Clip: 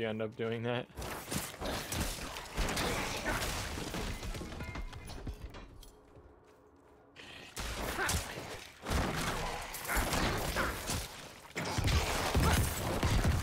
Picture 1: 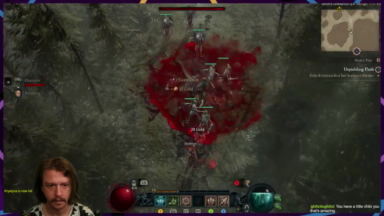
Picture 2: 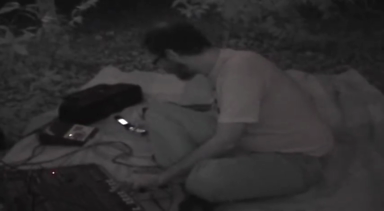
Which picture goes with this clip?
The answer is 1